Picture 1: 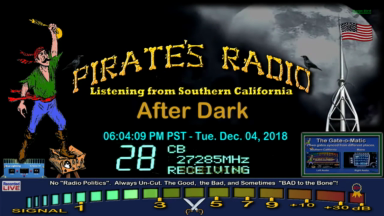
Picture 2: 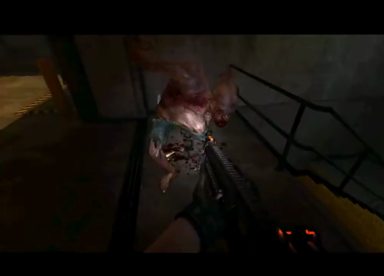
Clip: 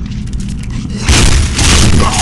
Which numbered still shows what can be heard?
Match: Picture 2